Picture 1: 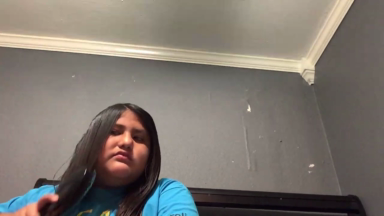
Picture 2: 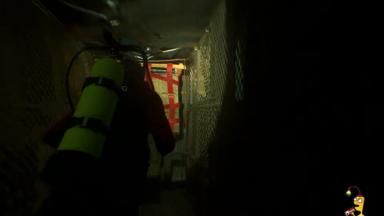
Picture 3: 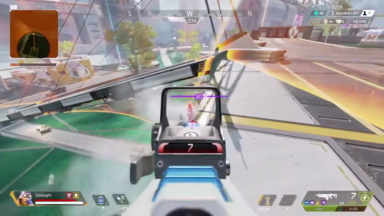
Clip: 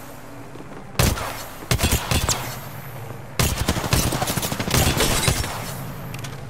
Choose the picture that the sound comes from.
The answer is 3